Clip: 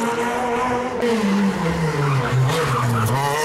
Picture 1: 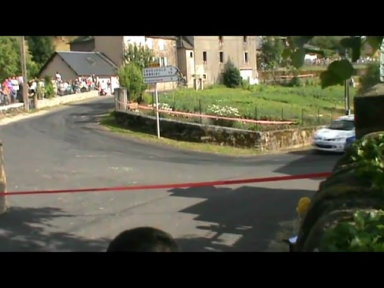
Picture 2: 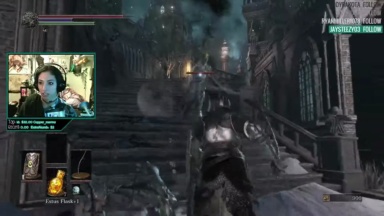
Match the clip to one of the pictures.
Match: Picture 1